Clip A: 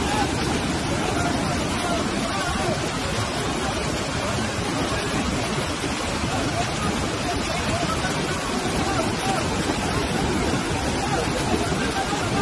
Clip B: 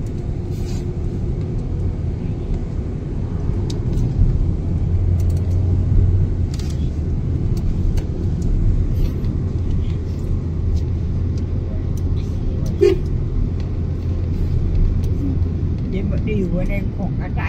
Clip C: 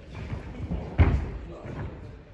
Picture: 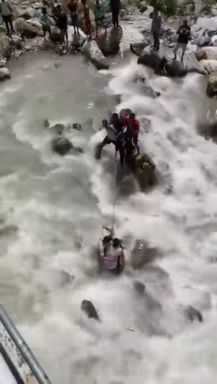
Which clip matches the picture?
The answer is A